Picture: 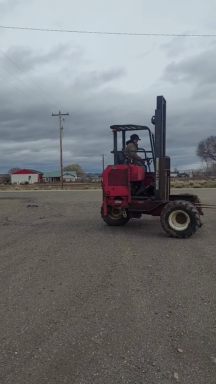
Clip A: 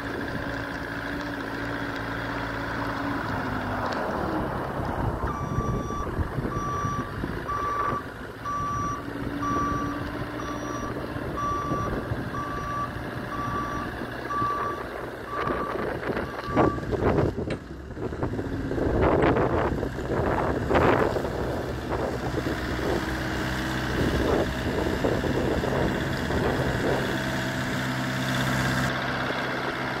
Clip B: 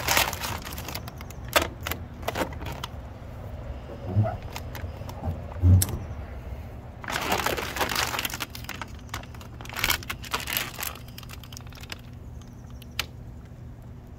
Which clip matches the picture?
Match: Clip A